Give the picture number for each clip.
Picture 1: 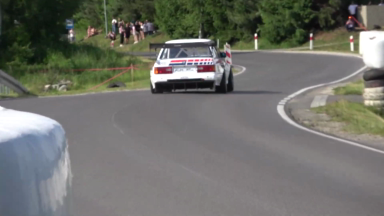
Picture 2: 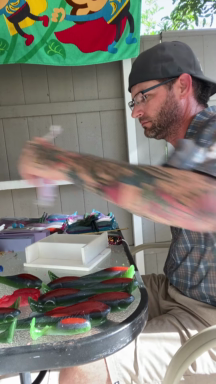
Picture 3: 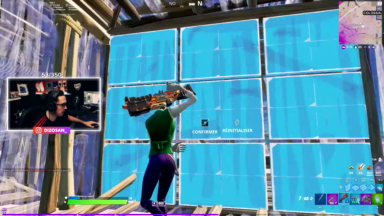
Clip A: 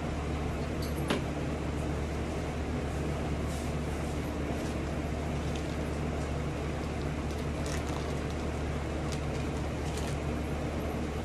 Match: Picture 2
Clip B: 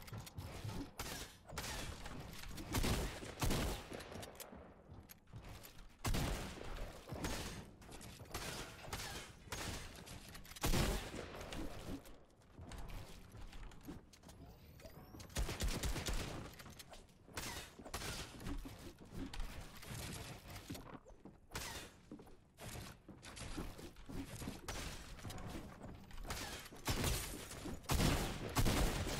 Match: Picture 3